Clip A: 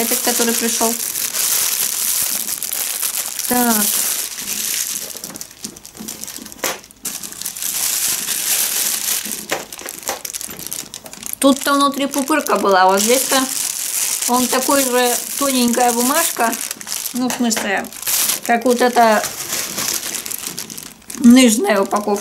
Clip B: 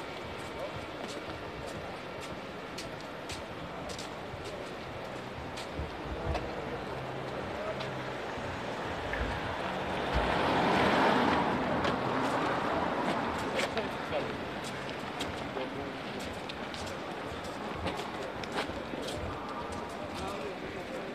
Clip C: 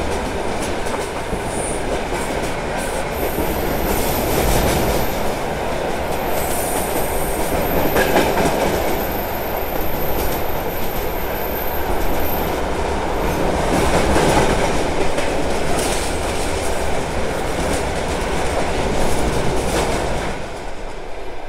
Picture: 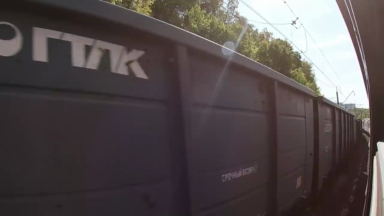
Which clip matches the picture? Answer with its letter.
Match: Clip C